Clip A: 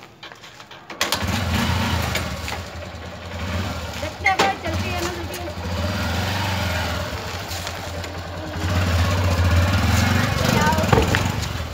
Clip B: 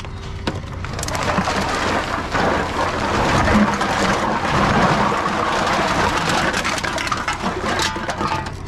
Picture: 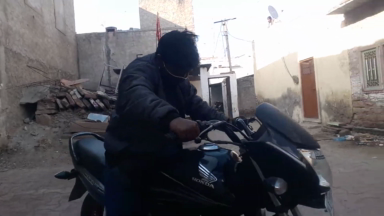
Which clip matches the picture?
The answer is A